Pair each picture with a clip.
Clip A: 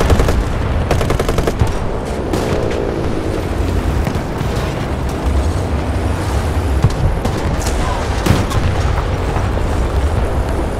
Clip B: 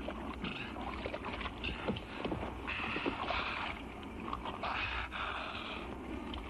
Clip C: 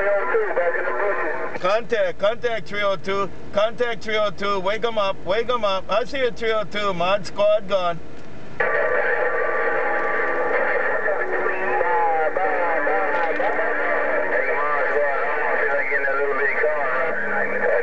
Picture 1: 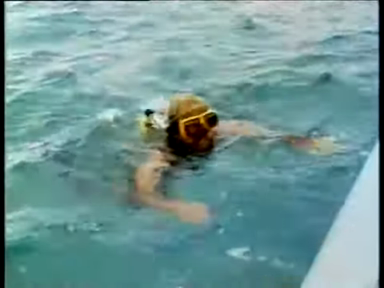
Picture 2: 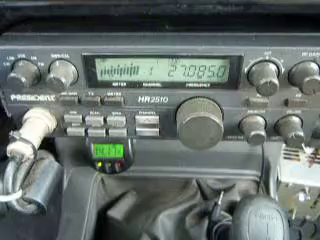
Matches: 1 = B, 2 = C